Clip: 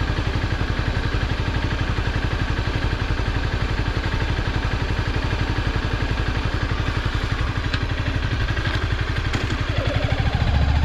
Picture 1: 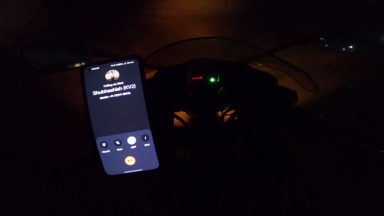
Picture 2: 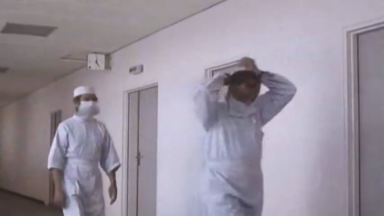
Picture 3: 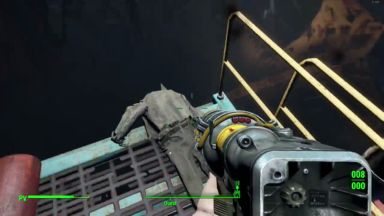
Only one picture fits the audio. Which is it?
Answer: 1